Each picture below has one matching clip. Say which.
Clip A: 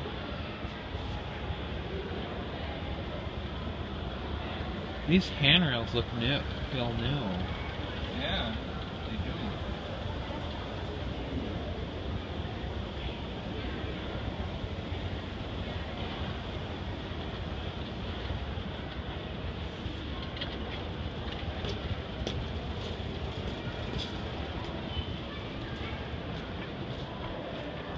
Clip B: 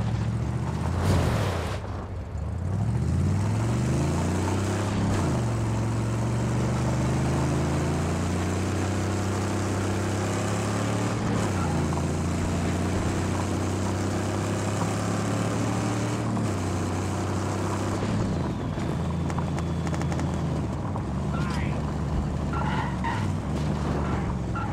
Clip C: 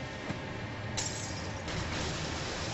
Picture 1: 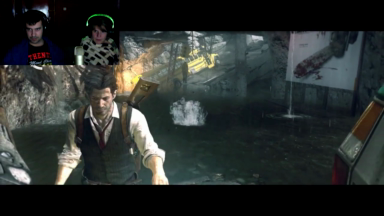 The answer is C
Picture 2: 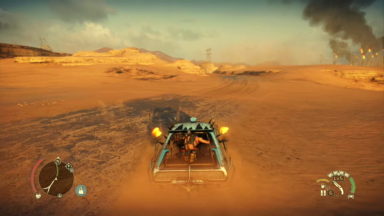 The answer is B